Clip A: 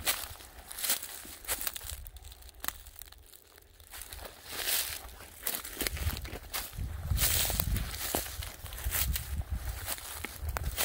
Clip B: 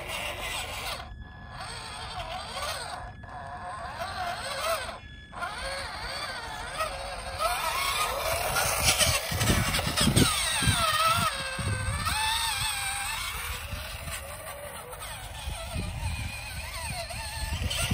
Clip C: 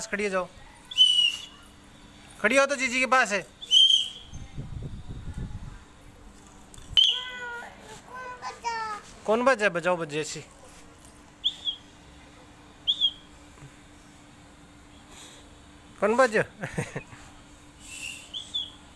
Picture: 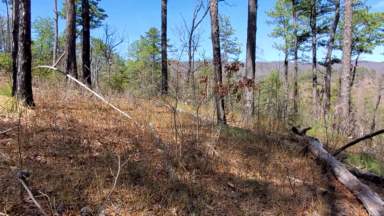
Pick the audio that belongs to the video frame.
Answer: A